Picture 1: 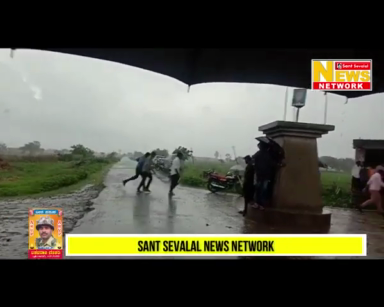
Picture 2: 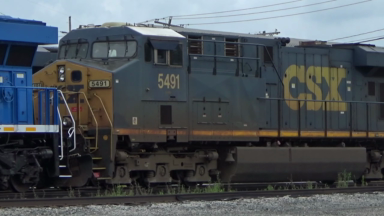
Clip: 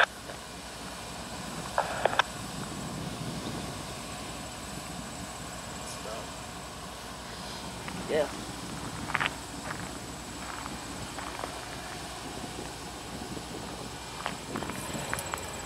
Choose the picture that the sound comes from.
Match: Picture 2